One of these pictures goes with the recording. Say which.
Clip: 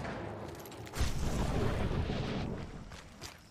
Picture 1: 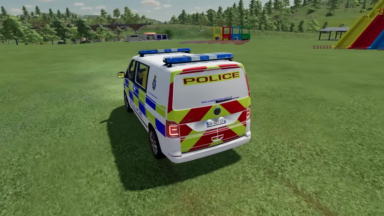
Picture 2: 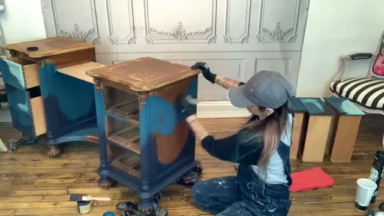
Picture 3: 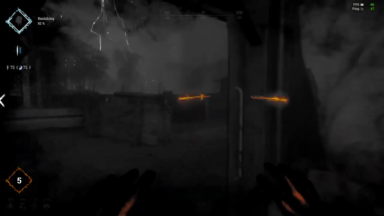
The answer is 3